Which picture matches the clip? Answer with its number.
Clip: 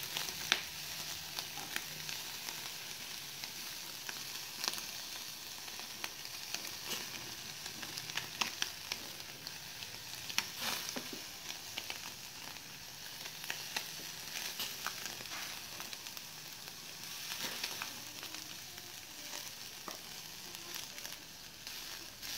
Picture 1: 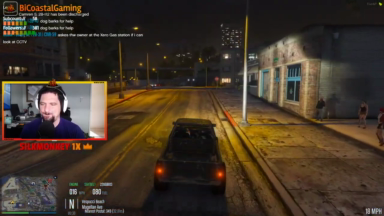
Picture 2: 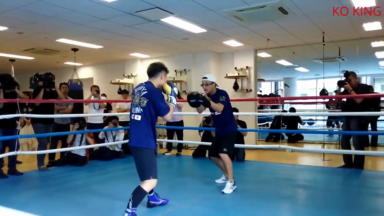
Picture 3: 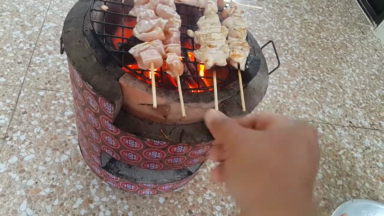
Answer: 3